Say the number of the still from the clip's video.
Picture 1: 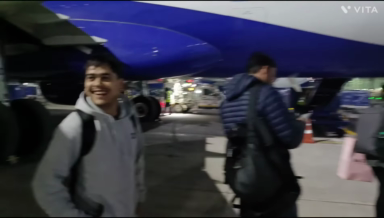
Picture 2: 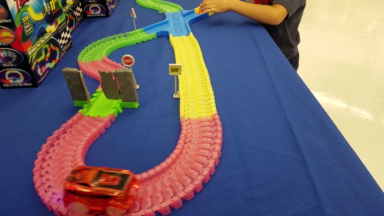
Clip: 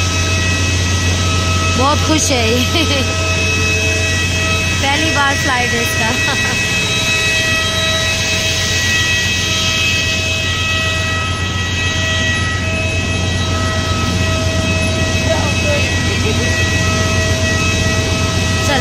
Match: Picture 1